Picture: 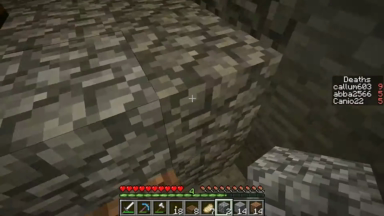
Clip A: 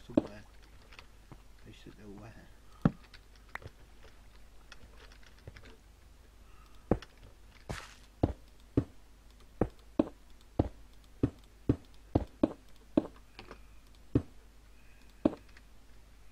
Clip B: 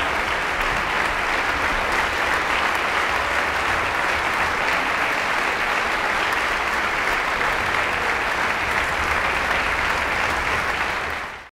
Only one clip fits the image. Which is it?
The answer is A